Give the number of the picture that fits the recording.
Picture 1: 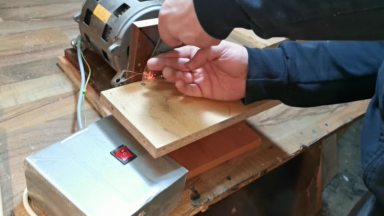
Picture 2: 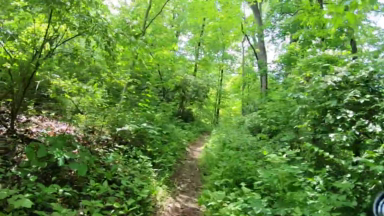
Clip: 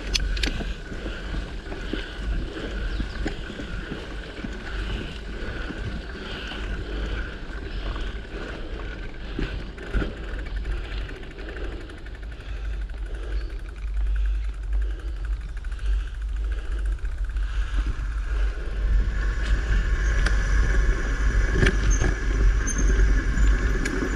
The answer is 2